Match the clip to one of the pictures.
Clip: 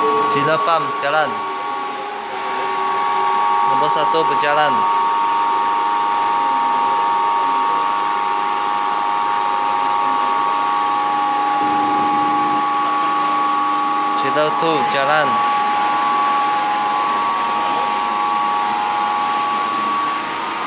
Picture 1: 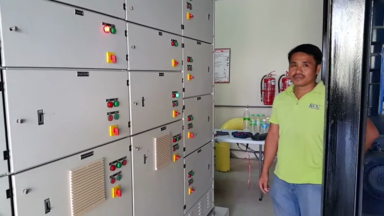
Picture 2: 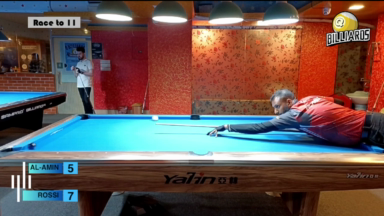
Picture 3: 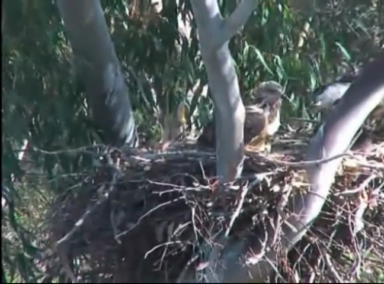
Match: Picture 1